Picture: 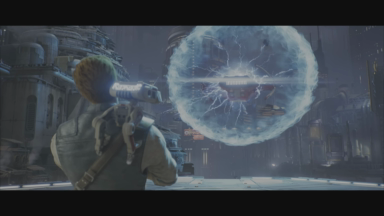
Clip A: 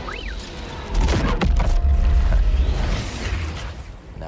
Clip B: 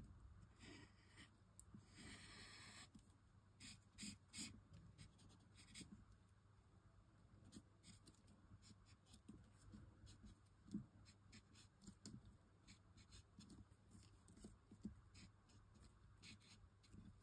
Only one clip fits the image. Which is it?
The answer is A